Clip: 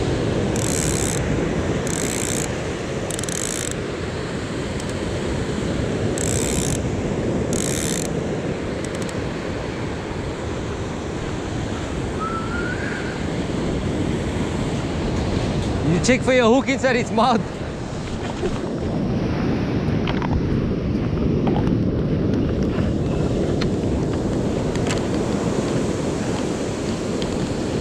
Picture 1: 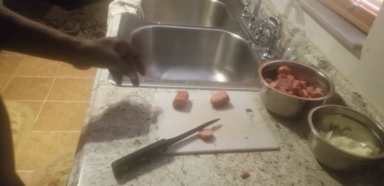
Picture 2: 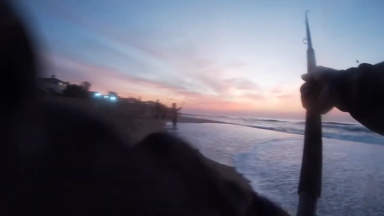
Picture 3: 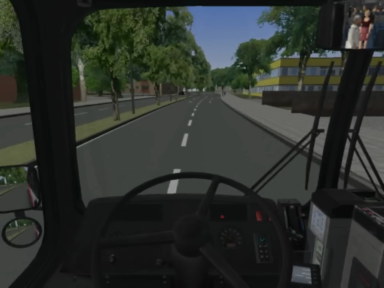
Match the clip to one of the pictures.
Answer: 2